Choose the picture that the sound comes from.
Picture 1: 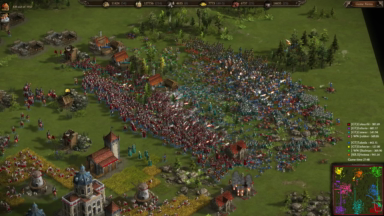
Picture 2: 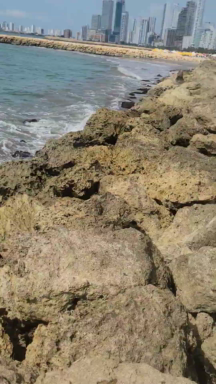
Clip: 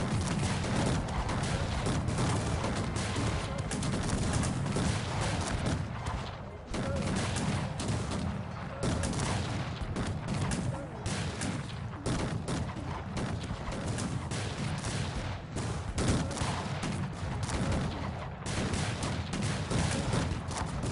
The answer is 1